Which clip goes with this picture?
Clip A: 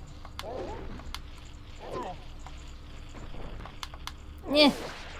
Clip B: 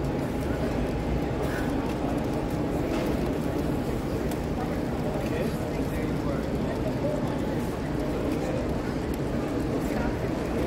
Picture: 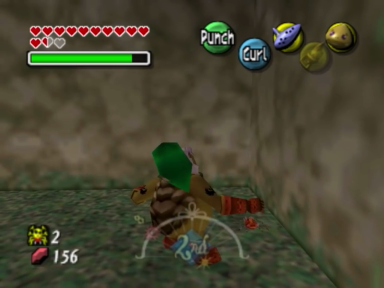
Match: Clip A